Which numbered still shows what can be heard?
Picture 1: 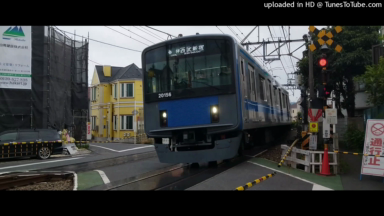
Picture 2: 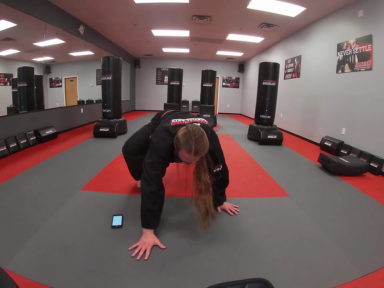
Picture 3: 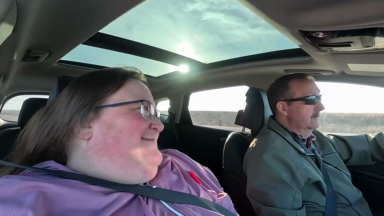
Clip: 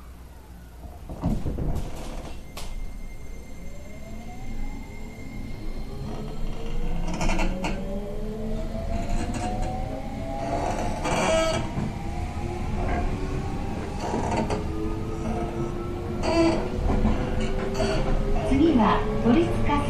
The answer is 1